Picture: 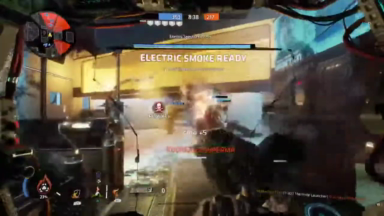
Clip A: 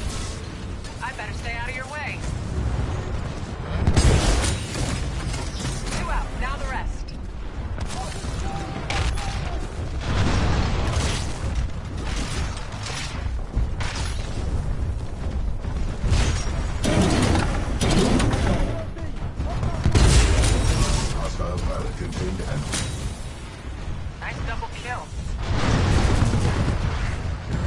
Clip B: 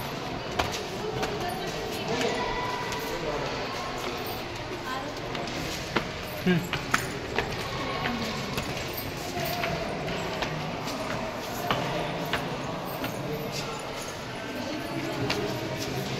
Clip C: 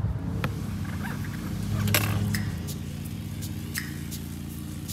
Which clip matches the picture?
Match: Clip A